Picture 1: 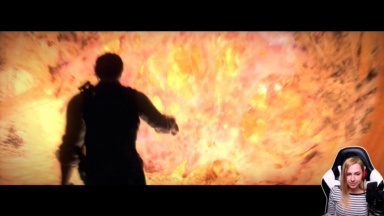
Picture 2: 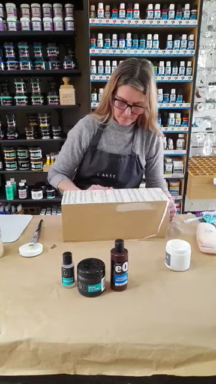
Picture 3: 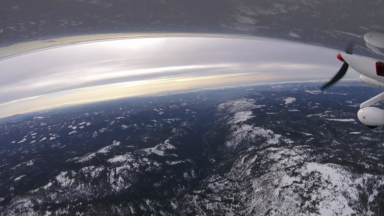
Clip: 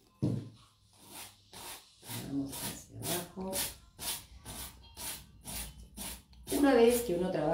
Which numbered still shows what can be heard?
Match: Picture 2